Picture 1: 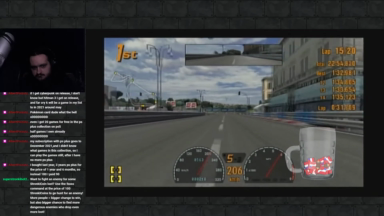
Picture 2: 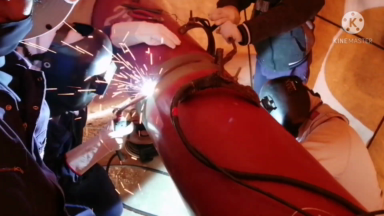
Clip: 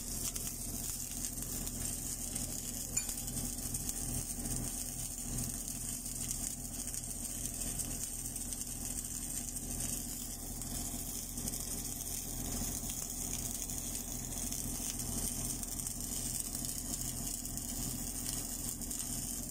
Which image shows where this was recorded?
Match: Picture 2